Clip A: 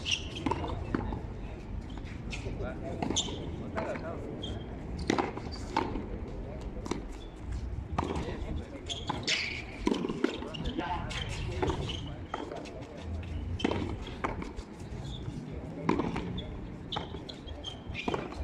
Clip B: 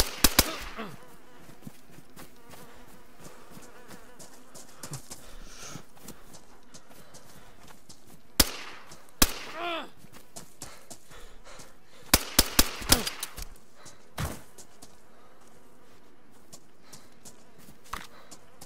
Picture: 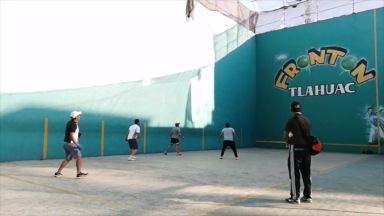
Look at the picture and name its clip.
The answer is A